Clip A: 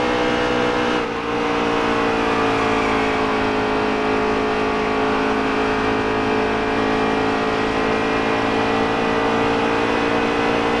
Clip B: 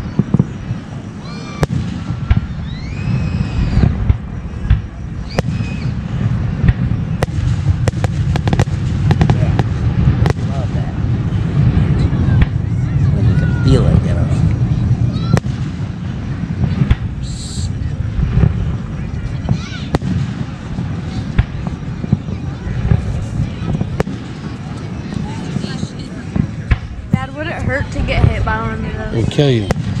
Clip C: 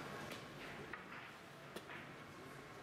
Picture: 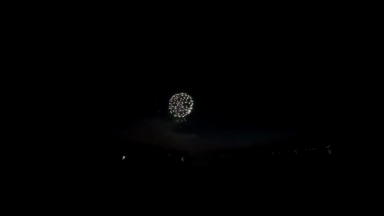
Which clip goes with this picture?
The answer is B